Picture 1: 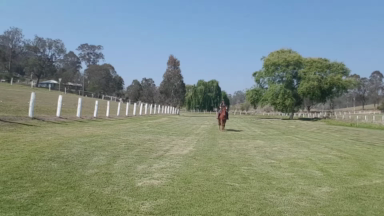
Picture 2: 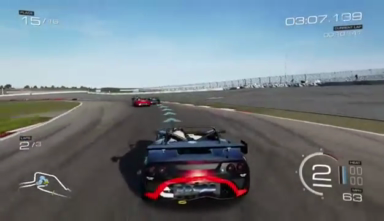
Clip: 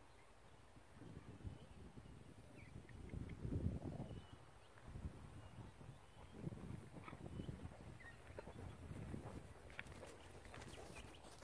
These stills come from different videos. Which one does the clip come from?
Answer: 1